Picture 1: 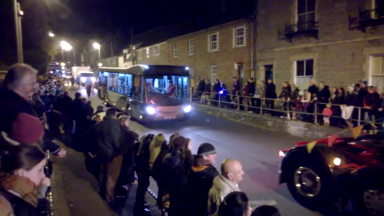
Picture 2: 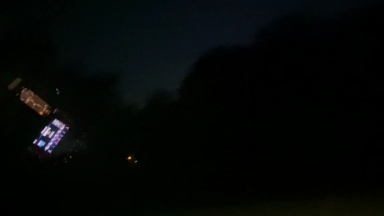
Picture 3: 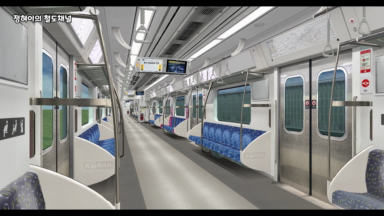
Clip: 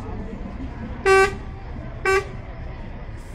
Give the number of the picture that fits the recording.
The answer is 1